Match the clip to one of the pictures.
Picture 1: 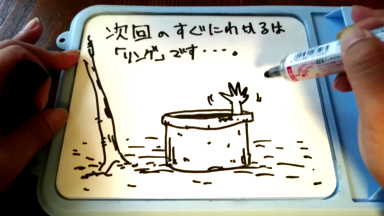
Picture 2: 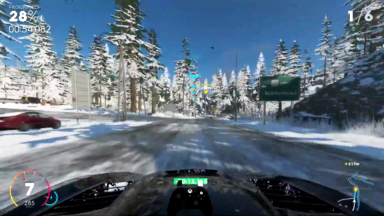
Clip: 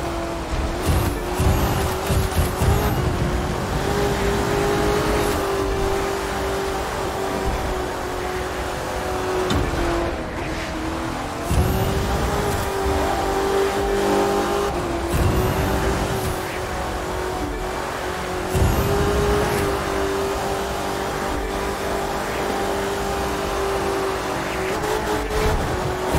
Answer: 2